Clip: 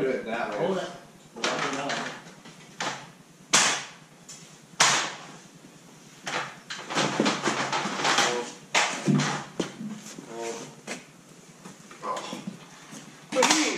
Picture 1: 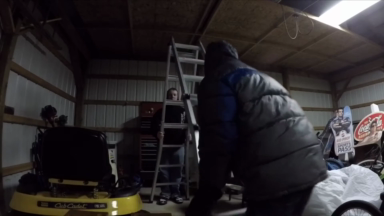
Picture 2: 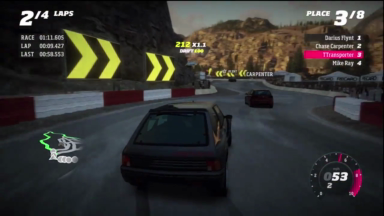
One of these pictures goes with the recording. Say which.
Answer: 1